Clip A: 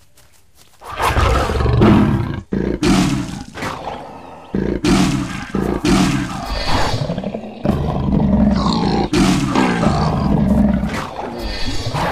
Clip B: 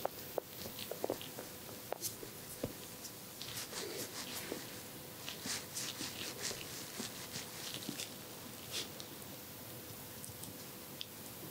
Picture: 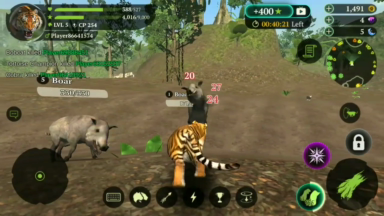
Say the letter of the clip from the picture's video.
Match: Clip A